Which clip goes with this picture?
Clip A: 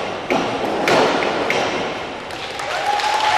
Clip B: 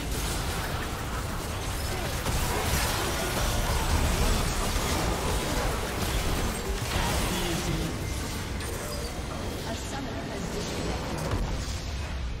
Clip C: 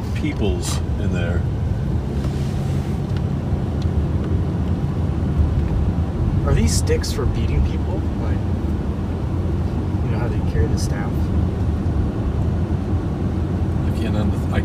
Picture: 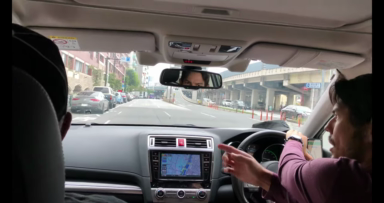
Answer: C